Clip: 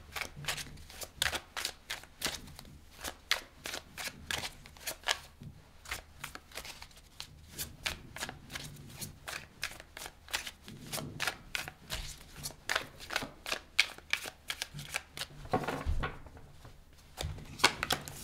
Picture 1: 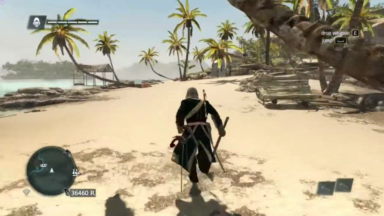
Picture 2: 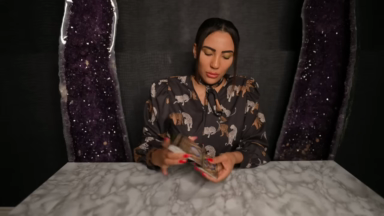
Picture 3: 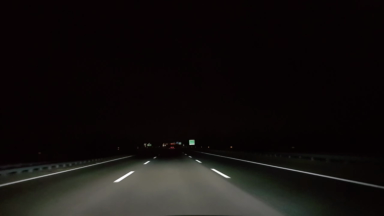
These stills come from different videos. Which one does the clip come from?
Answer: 2